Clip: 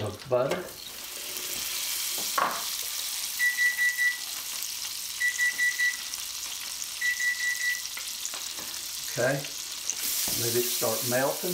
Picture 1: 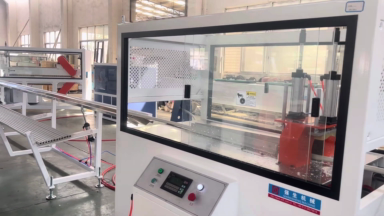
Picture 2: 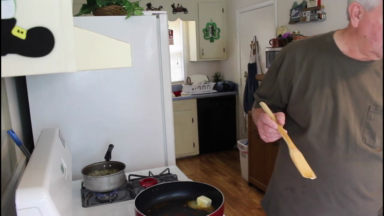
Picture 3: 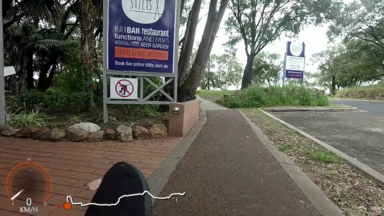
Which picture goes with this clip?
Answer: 2